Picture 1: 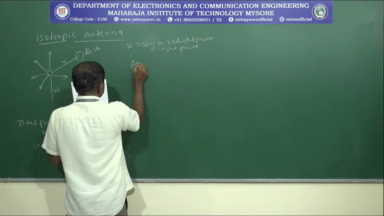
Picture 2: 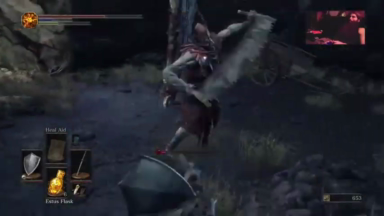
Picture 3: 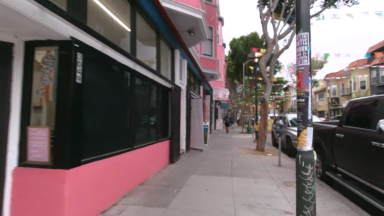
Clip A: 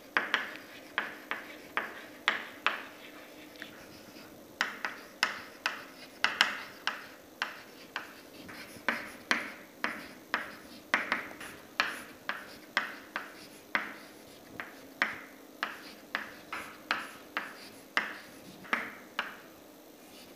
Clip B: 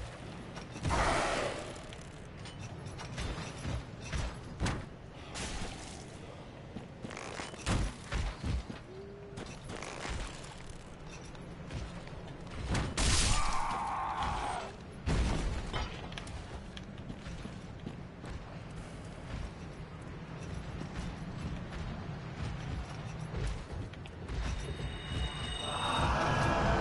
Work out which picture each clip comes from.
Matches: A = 1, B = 2